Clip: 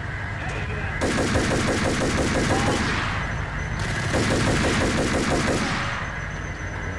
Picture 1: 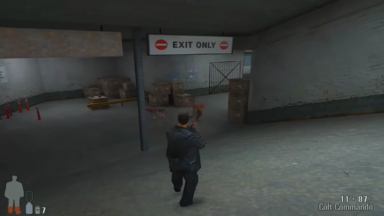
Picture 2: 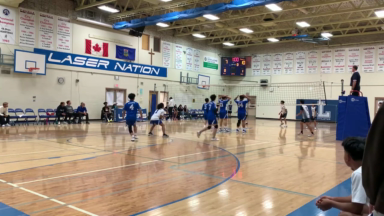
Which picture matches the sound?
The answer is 1